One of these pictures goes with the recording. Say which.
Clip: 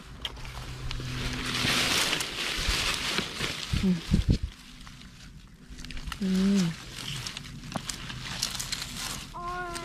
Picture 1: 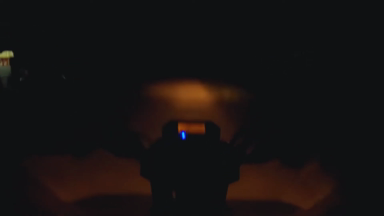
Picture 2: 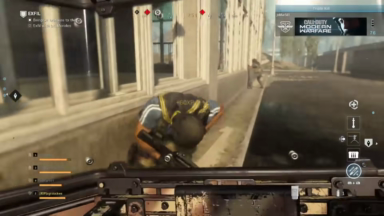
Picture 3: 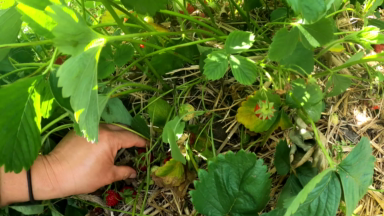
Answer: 3